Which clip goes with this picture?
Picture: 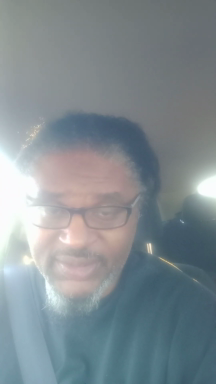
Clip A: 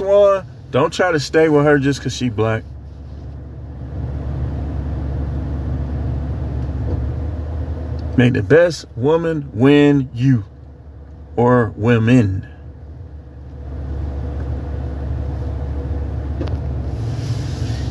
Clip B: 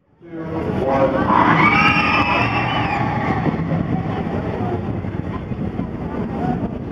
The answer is A